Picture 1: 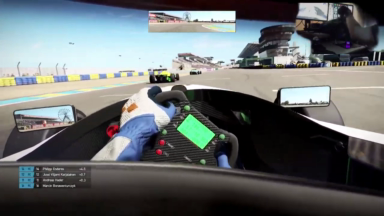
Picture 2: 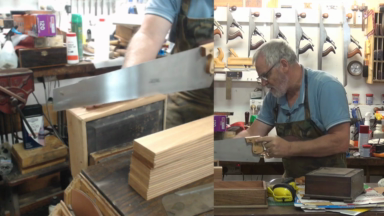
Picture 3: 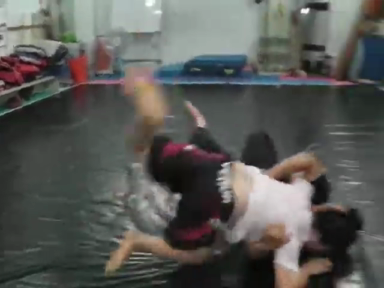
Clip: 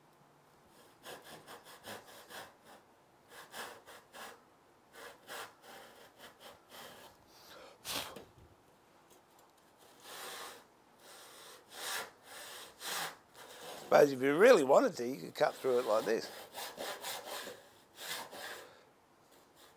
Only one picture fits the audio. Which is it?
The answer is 2